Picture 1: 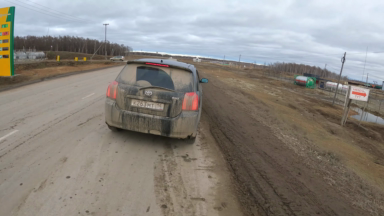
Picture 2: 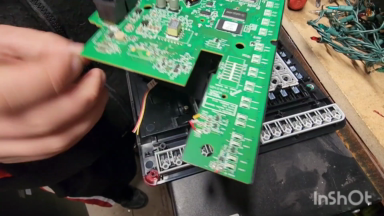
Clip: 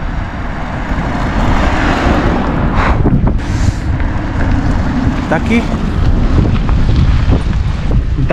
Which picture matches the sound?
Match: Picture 1